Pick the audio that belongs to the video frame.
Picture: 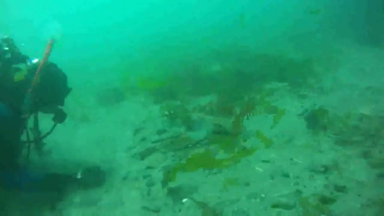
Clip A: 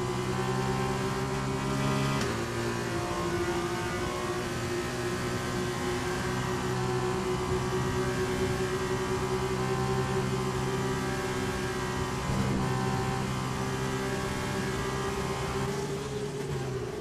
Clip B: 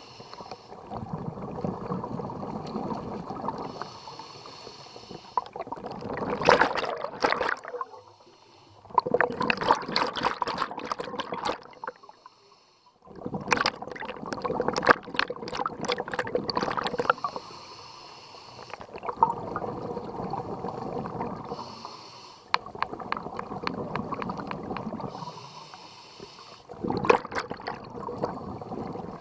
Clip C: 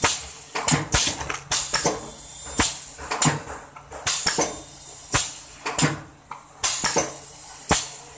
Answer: B